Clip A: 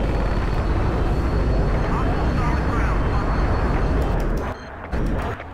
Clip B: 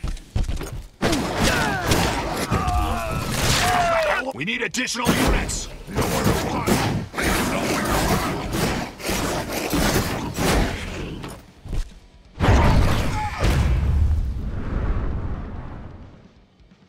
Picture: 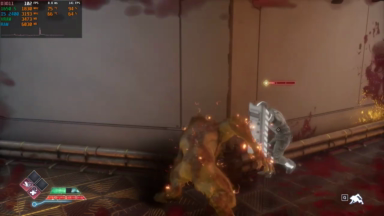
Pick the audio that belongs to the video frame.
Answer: B